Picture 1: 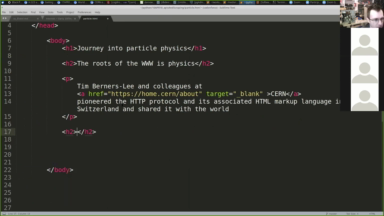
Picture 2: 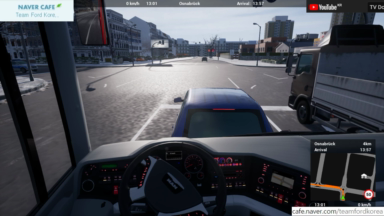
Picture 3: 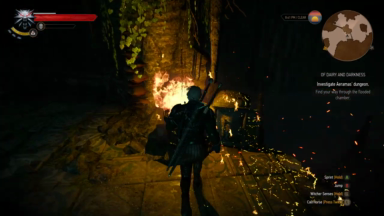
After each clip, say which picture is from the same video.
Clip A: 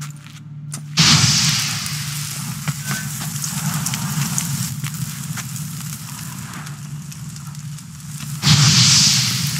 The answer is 3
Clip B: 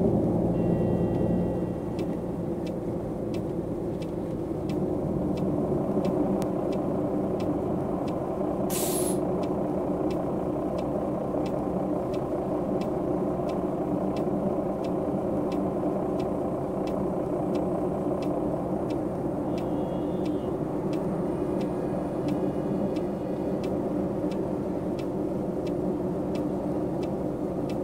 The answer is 2